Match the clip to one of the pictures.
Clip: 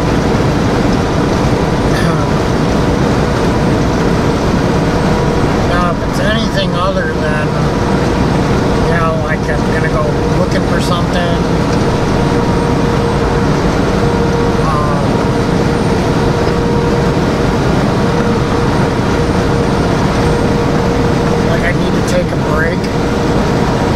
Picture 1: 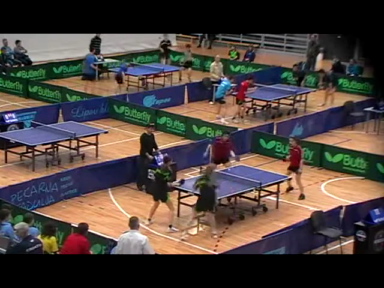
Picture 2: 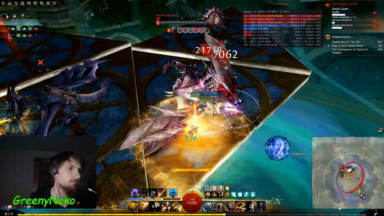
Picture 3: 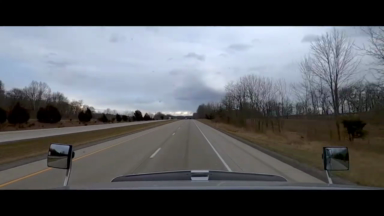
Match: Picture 3